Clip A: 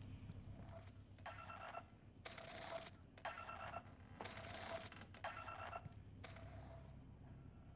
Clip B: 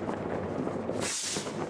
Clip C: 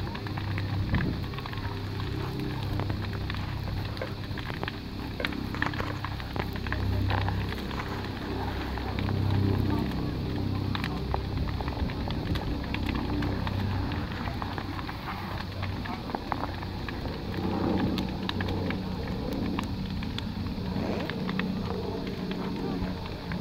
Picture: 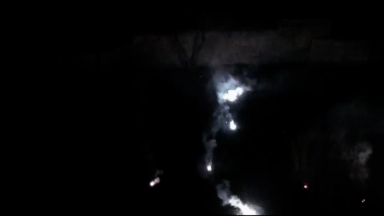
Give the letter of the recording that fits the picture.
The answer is B